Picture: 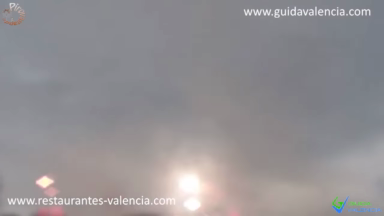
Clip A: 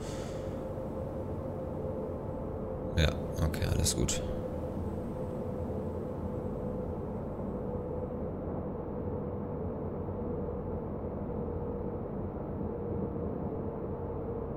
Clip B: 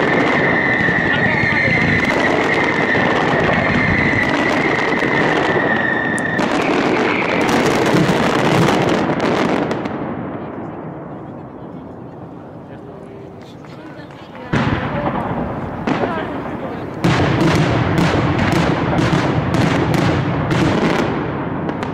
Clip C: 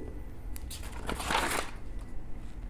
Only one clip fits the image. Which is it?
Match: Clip B